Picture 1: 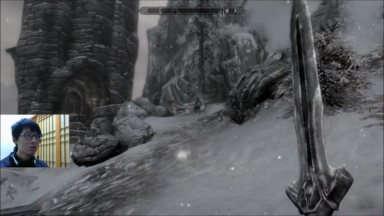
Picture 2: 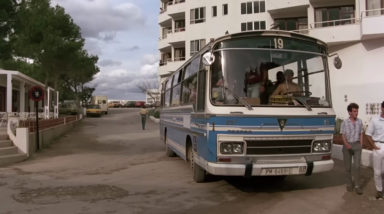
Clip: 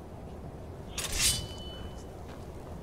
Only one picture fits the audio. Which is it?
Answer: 1